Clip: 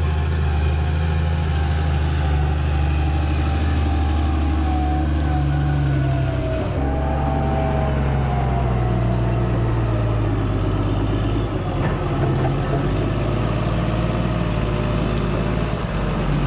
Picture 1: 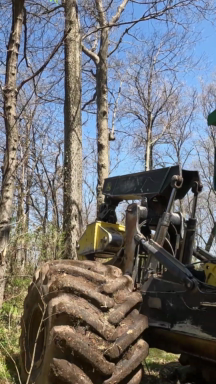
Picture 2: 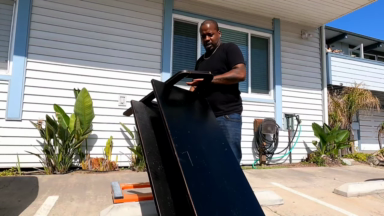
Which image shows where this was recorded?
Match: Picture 1